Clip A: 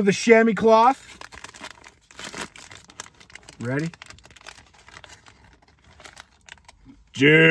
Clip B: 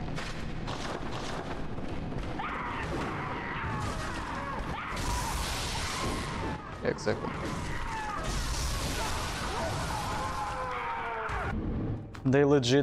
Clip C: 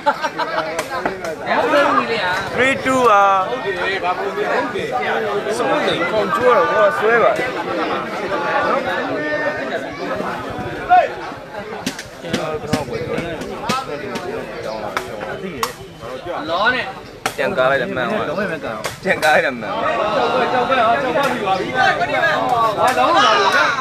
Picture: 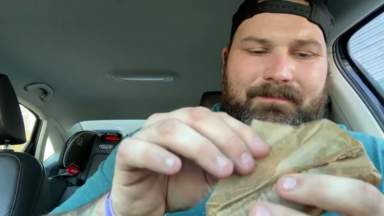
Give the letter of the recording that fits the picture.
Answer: A